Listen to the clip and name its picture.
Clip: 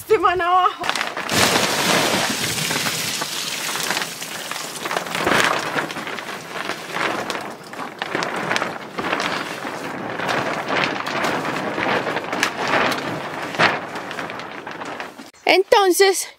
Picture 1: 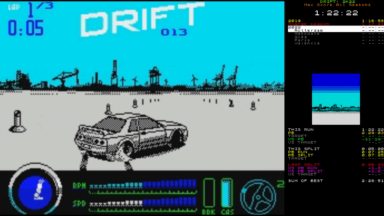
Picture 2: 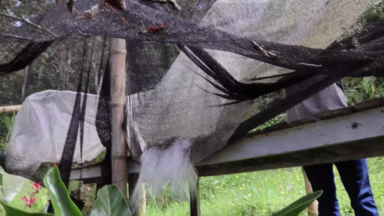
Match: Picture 2